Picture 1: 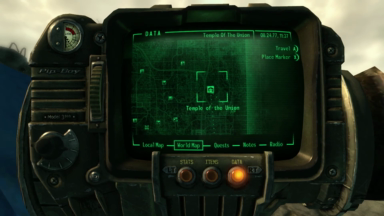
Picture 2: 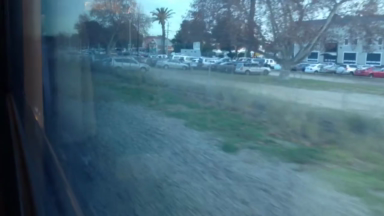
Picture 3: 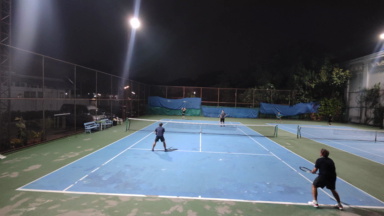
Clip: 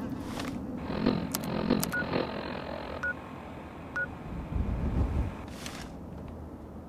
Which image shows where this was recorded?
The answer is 1